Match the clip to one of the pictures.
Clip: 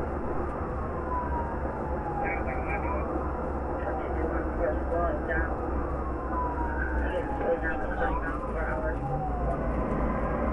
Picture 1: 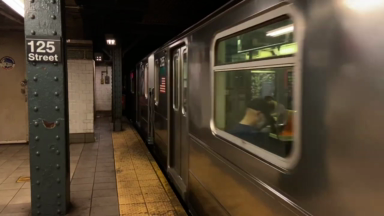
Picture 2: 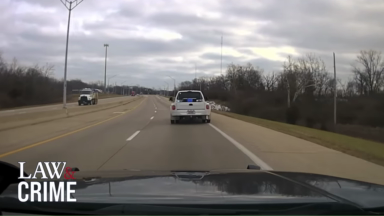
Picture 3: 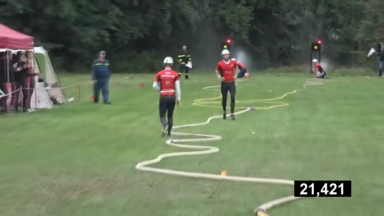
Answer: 2